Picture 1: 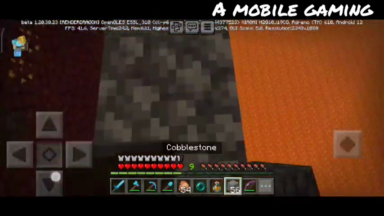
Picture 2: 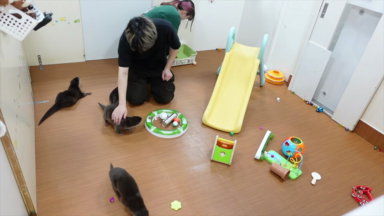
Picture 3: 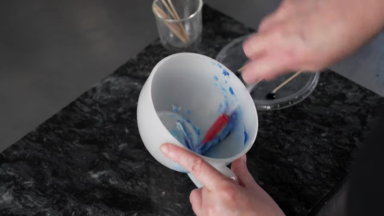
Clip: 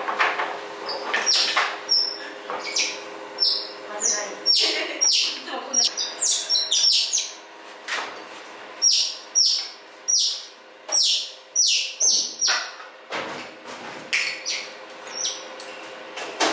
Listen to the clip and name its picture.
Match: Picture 2